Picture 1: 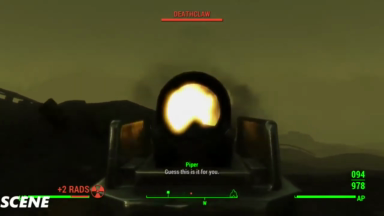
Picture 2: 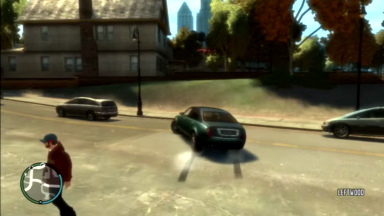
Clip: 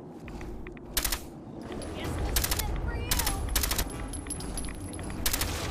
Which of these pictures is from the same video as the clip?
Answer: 1